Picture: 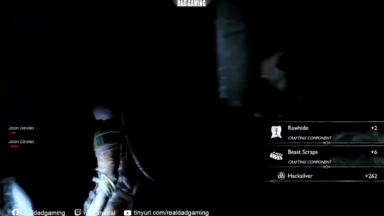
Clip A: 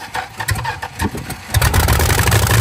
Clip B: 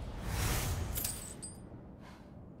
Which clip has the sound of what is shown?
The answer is B